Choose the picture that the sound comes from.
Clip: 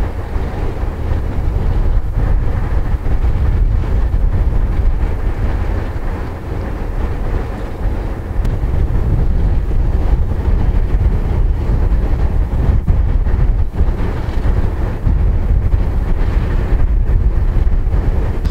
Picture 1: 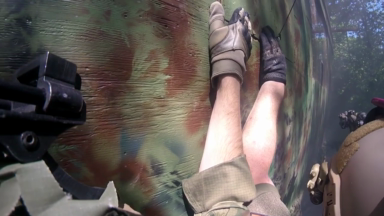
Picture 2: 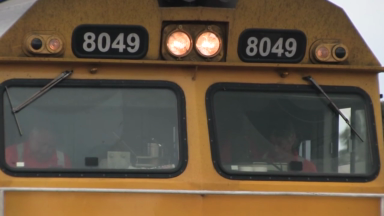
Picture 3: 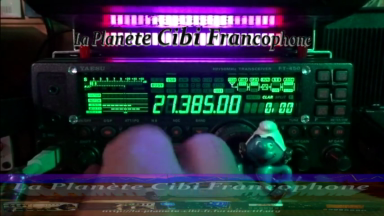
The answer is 2